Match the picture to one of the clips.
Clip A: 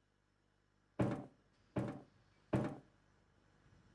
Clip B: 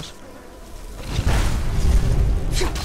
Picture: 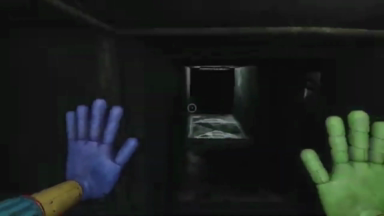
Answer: A